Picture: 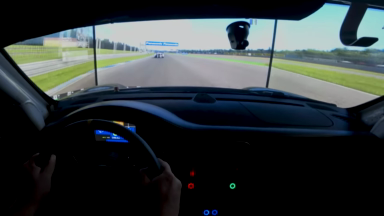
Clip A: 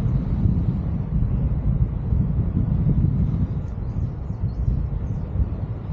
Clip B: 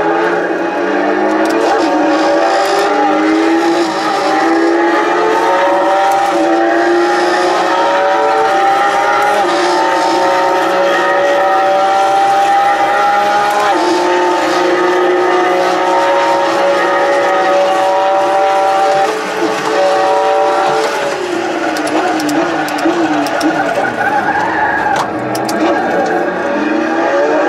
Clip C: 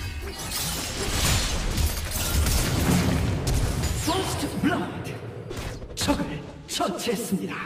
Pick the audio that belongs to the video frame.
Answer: B